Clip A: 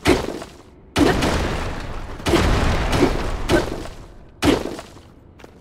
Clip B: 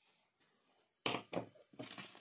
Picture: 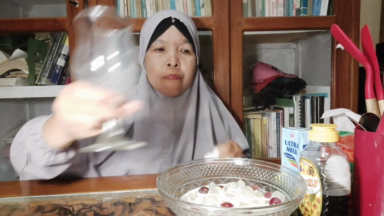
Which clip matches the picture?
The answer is B